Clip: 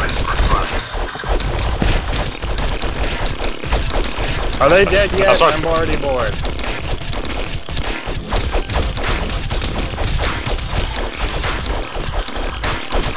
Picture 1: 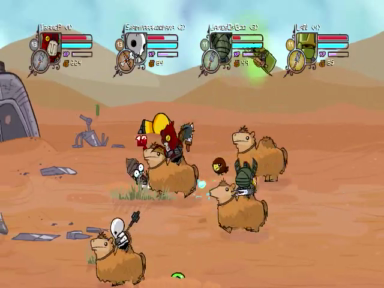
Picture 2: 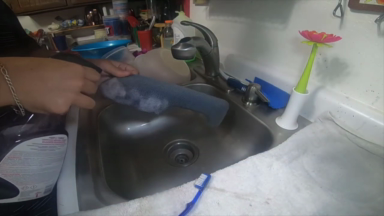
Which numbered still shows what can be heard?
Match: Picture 1